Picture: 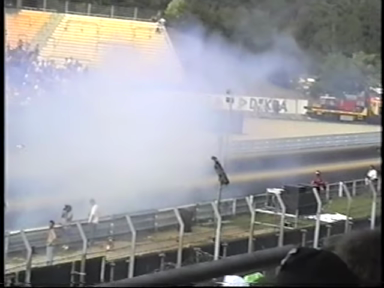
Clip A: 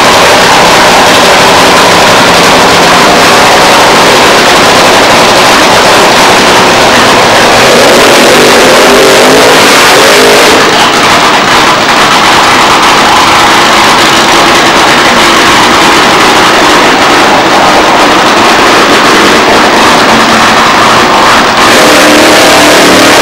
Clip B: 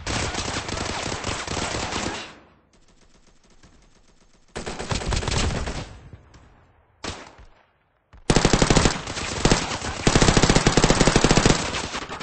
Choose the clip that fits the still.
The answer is A